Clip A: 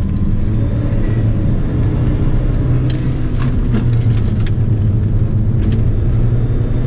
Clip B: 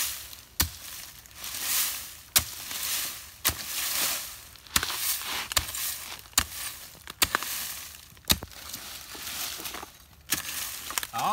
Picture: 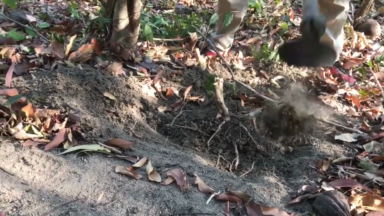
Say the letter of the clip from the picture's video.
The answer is B